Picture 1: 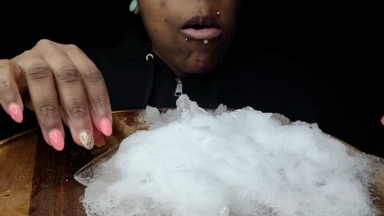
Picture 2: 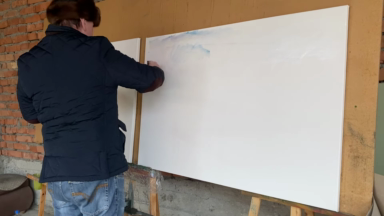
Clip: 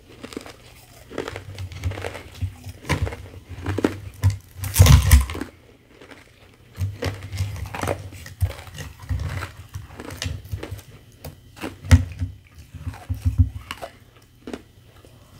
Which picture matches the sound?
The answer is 1